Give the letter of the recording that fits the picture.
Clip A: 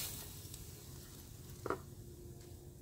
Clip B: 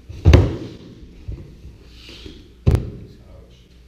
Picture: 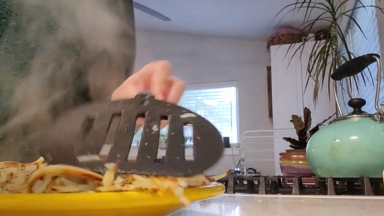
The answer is A